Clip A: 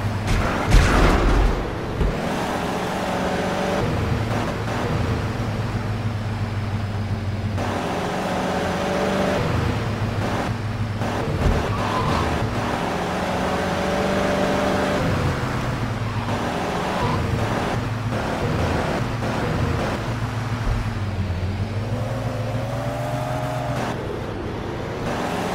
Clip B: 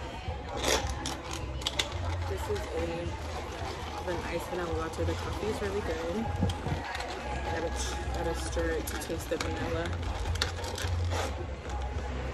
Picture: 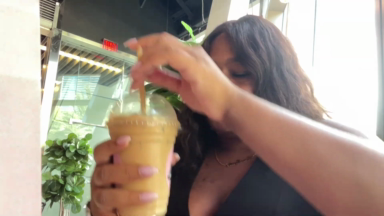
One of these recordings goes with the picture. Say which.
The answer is B